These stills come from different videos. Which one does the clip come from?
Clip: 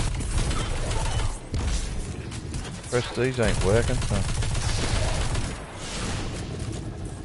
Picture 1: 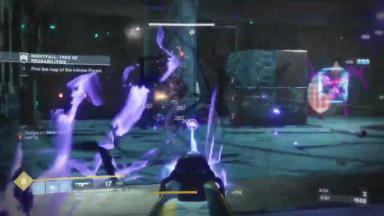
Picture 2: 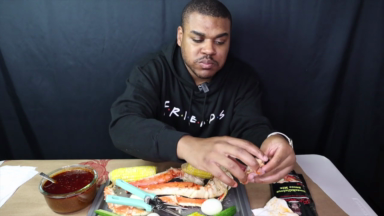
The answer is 1